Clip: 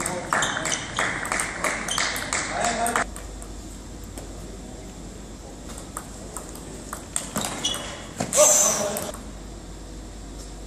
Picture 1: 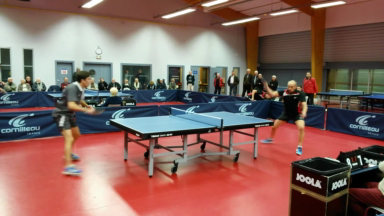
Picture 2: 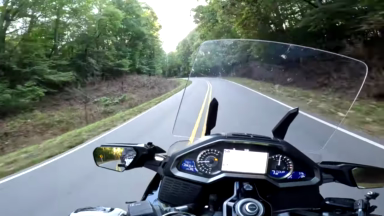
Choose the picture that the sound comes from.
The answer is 1